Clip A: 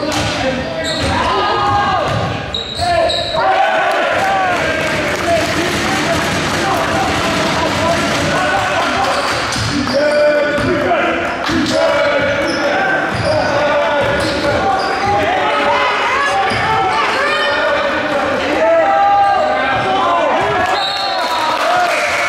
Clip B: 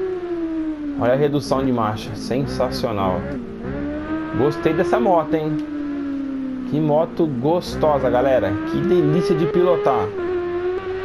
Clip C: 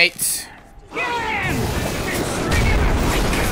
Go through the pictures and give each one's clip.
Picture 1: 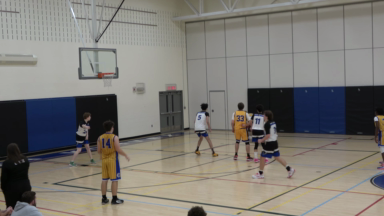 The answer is A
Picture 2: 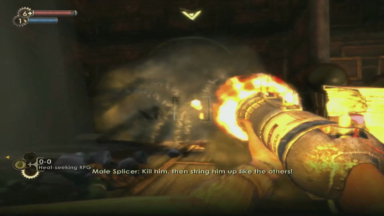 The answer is C